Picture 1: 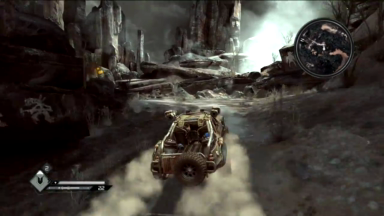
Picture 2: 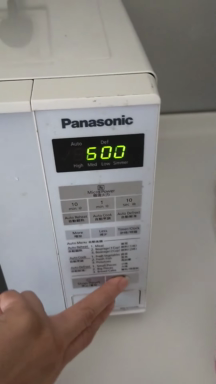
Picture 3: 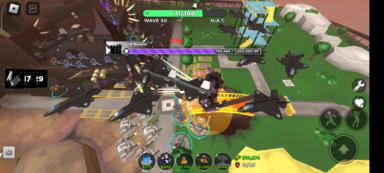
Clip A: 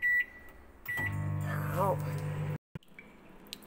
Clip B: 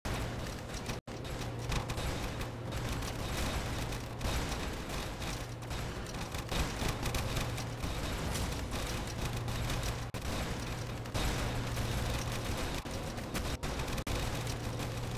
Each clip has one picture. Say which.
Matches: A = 2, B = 3